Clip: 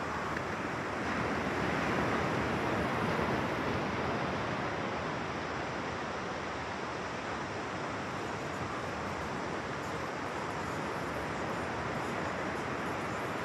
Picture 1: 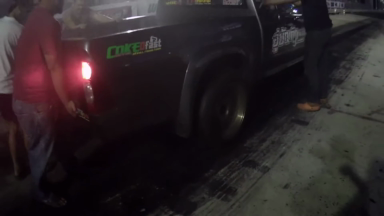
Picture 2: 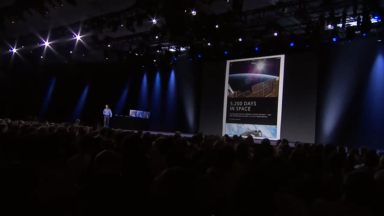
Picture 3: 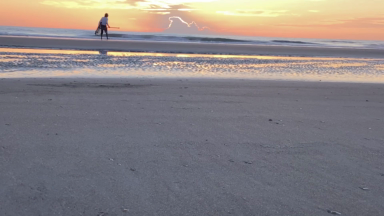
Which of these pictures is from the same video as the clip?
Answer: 3